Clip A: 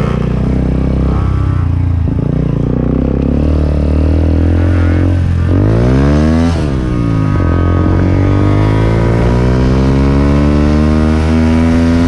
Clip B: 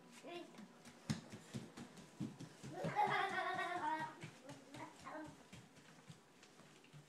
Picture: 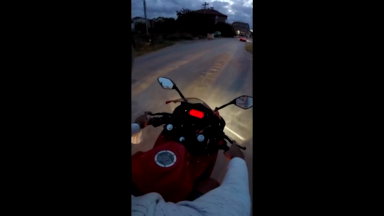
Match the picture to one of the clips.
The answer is A